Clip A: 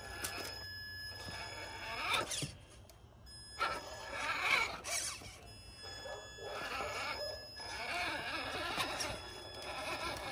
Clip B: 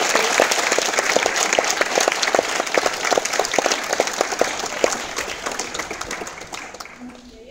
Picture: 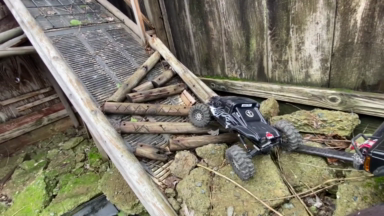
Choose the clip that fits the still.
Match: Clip A